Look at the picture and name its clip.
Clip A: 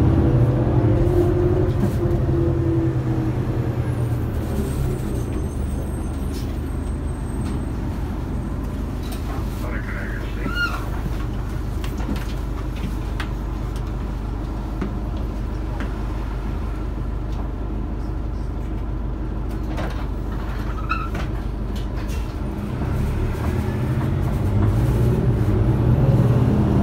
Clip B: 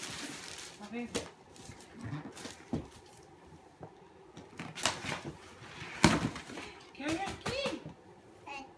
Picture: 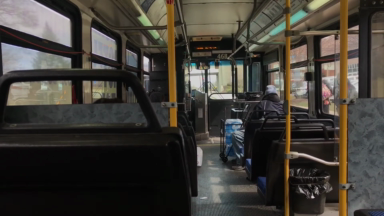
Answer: A